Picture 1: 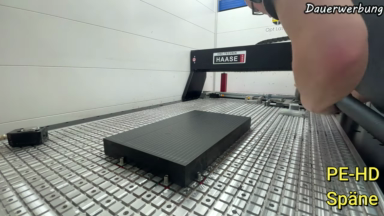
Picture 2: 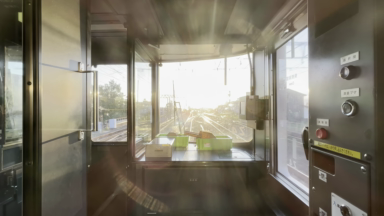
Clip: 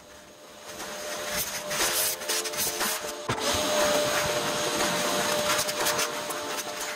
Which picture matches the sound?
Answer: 1